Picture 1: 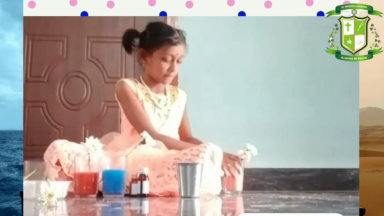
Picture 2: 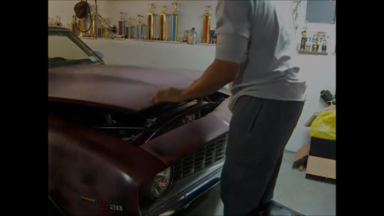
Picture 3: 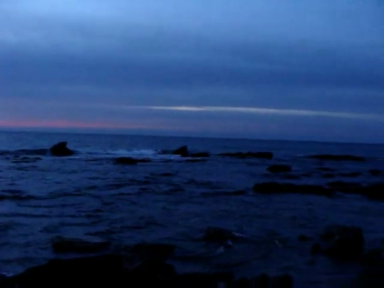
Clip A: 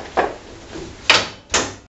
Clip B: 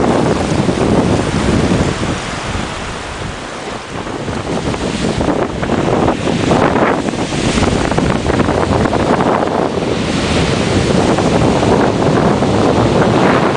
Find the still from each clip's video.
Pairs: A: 2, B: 3